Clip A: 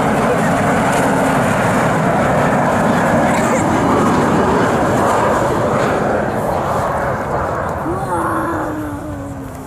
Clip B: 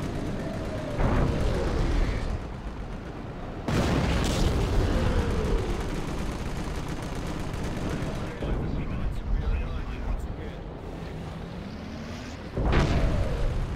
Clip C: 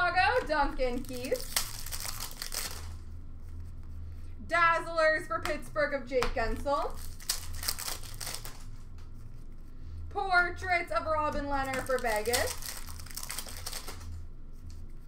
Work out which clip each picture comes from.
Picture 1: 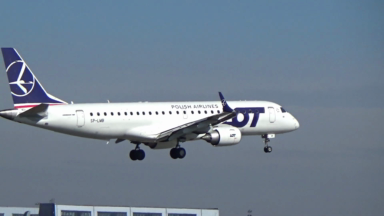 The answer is A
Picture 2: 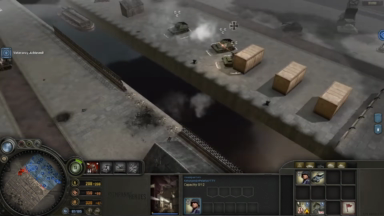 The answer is B